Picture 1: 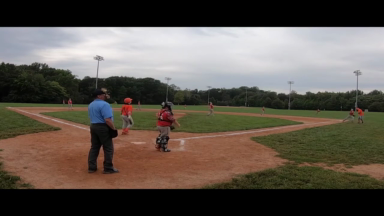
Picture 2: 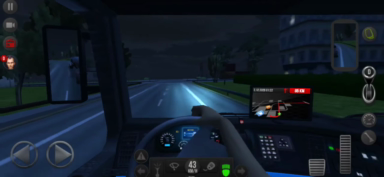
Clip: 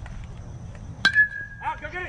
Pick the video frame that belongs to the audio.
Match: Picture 1